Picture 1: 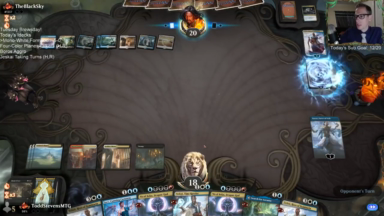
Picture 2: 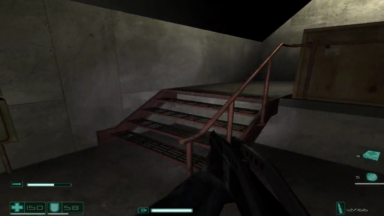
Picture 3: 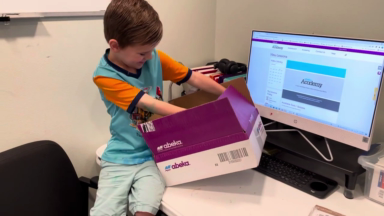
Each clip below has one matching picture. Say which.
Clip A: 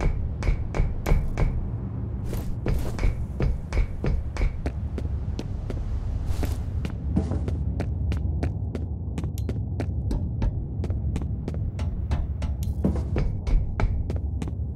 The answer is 2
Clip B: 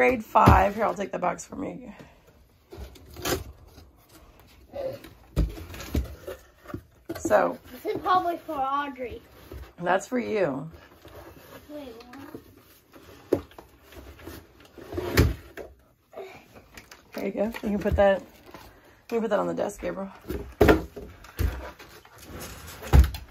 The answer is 3